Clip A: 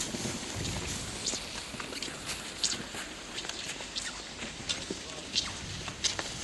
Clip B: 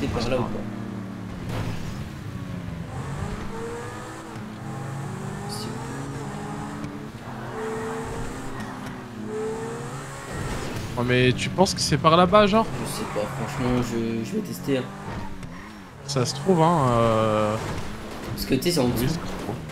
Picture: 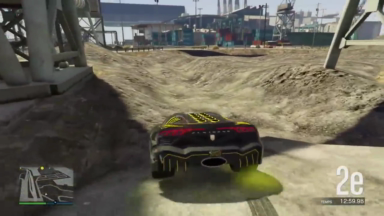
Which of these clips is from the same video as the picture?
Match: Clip B